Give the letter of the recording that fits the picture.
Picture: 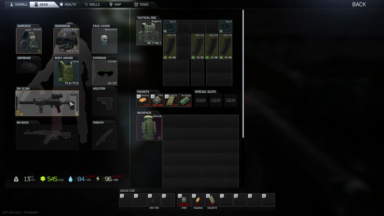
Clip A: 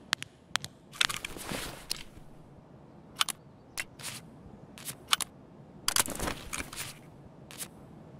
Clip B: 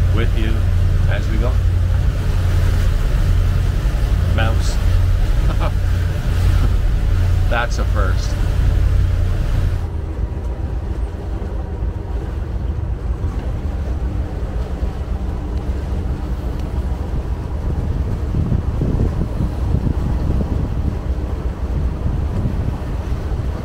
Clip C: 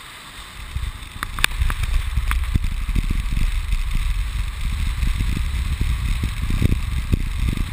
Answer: A